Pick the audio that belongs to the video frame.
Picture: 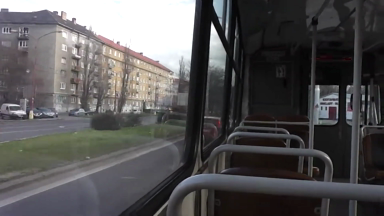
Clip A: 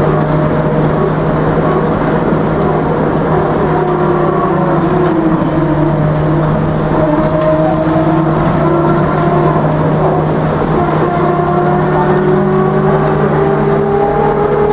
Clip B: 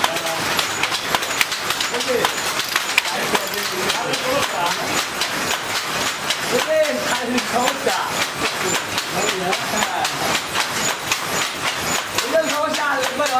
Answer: A